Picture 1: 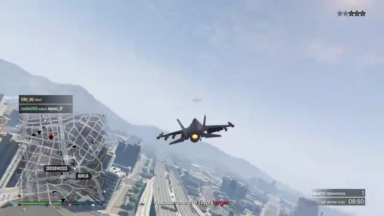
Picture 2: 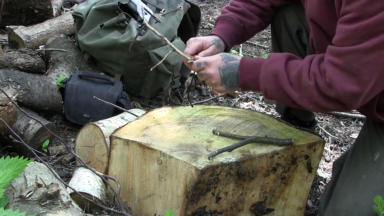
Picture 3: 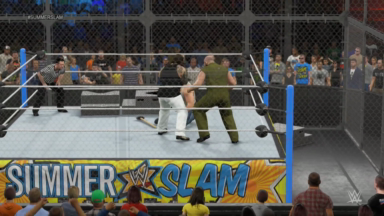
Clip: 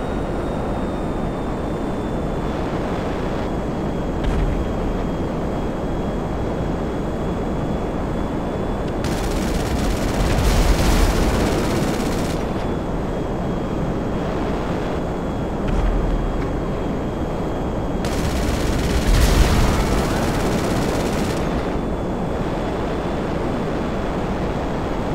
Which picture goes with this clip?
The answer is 1